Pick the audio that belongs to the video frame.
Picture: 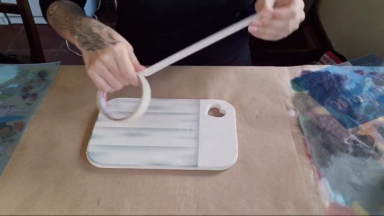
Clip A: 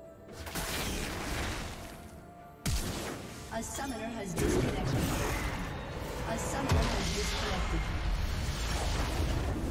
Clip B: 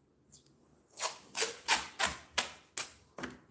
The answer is B